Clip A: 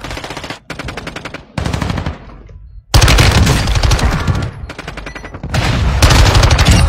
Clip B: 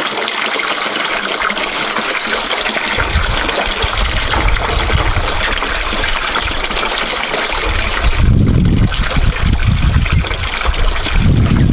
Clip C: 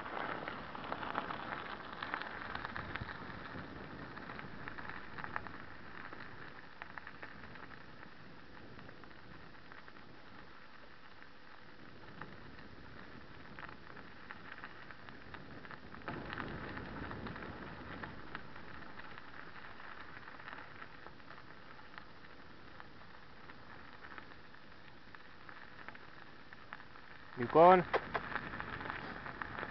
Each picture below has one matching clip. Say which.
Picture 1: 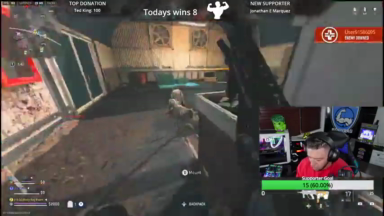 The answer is A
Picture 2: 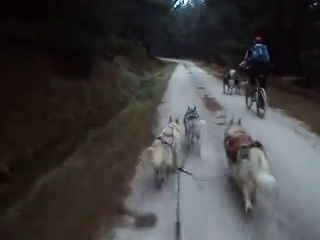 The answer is C